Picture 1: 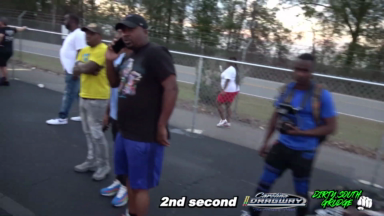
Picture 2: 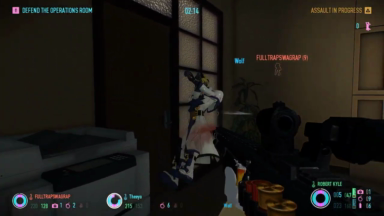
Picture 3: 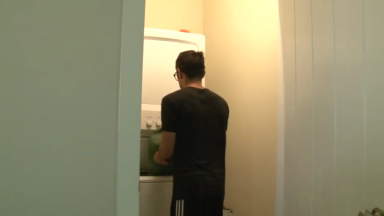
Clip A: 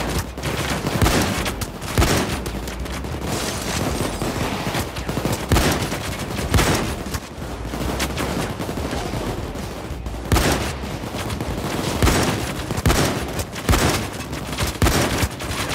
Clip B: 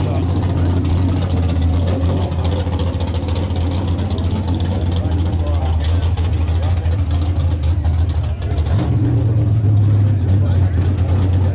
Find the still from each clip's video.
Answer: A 2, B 1